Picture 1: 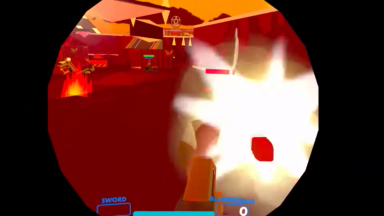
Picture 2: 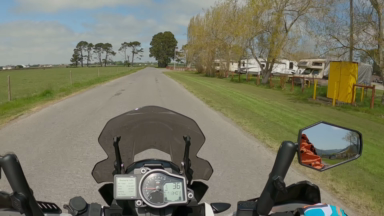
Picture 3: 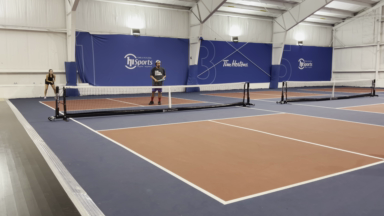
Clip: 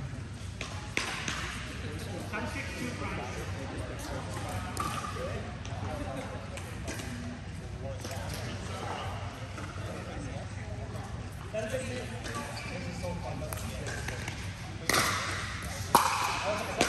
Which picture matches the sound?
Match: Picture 3